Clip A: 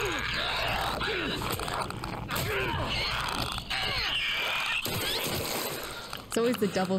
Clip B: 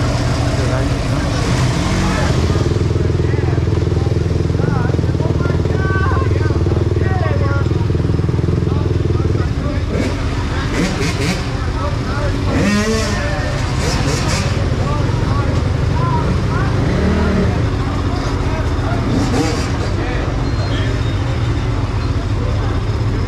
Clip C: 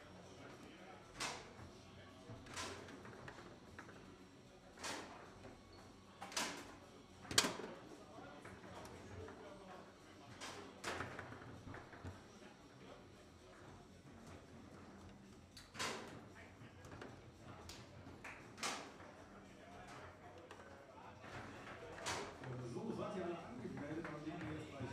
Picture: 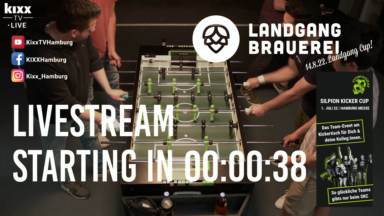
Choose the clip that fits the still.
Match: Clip C